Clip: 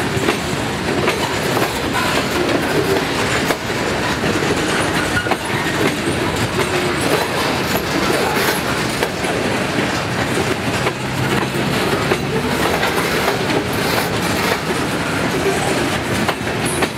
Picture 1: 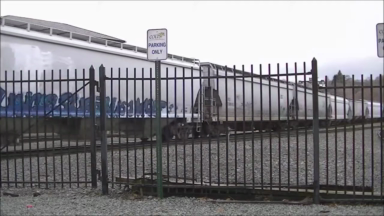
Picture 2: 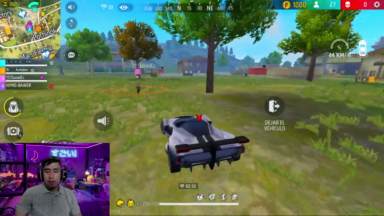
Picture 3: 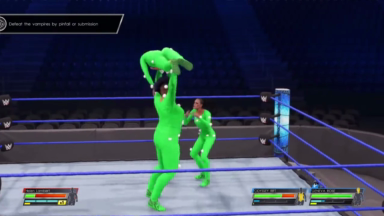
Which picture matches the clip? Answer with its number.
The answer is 1